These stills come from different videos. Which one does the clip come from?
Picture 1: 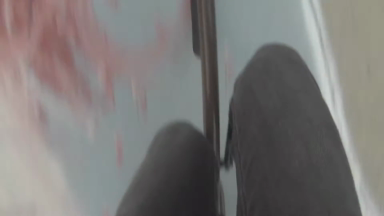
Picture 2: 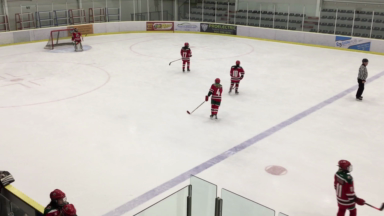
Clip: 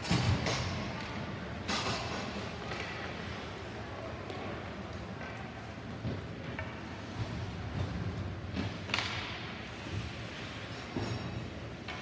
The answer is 2